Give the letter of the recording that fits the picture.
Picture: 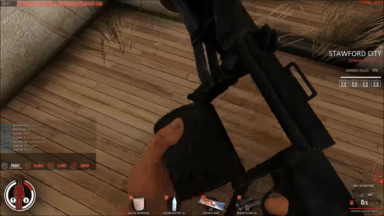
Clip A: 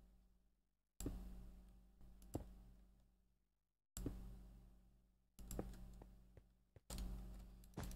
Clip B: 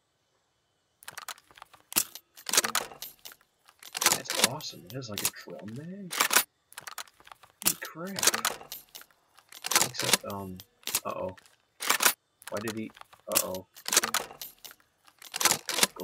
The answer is B